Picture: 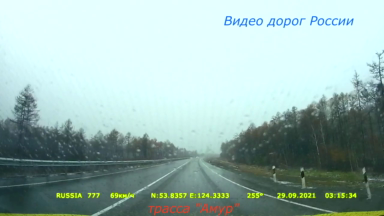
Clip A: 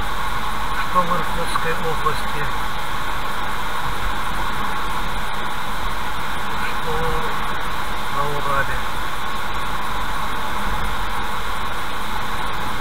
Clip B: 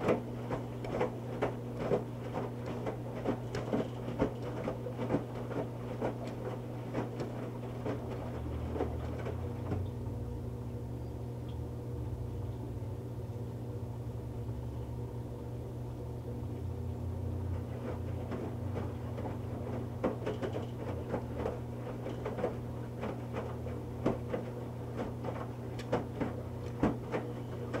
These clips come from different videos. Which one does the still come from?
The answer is A